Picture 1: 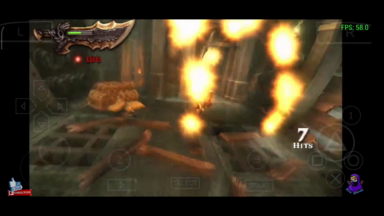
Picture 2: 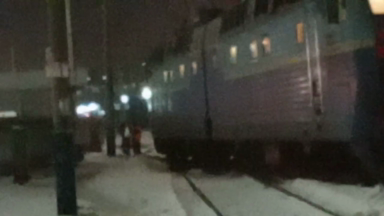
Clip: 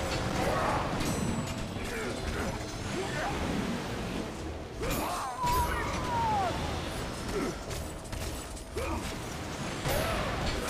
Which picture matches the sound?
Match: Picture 1